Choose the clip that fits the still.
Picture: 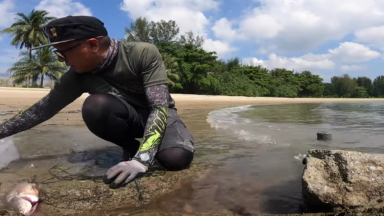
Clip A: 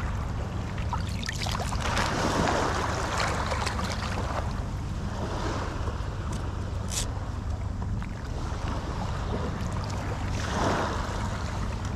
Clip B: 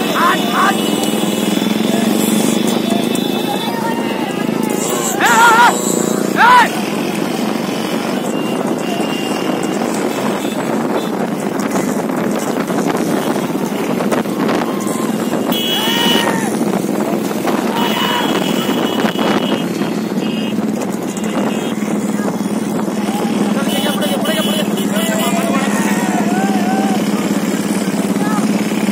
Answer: A